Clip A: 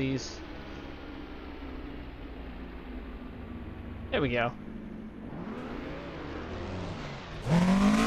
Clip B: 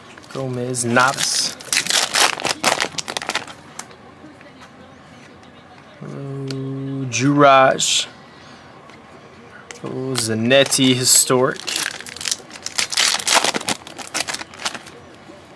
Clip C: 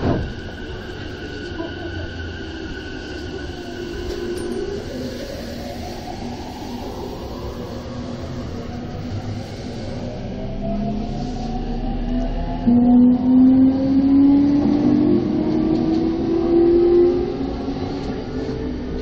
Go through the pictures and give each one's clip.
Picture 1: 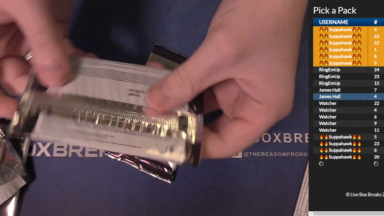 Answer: B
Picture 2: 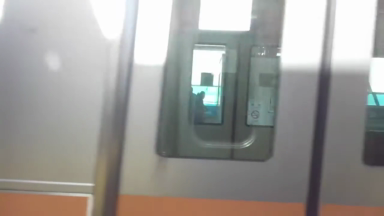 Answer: C